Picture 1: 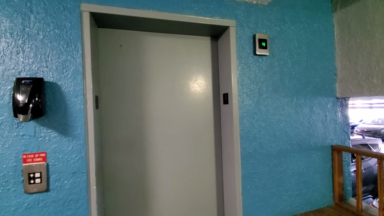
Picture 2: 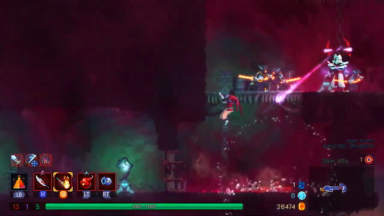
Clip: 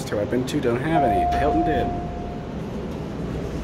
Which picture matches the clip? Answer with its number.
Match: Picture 1